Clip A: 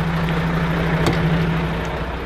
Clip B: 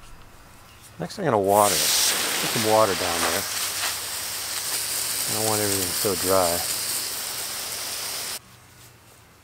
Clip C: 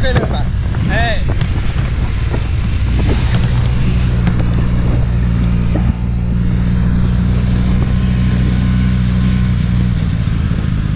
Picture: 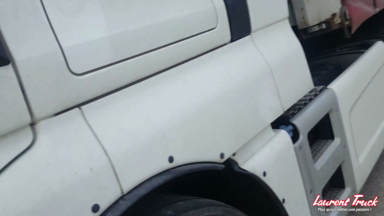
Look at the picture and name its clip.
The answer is A